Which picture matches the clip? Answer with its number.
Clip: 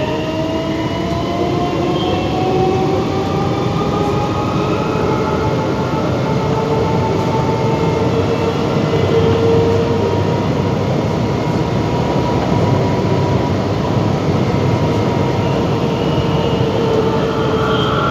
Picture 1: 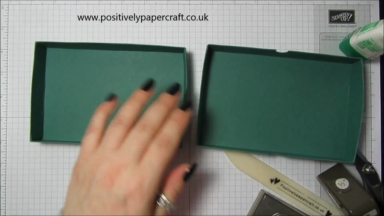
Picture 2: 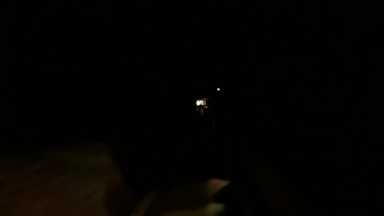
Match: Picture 2